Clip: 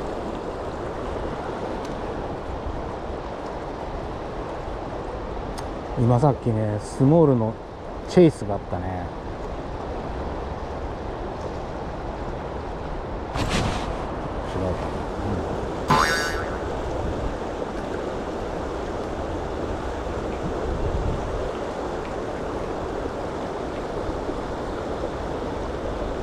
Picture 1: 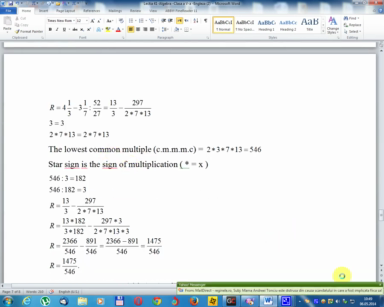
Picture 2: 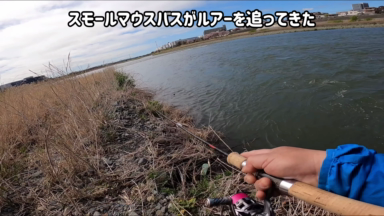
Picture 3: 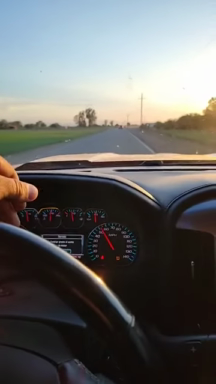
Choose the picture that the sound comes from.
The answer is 2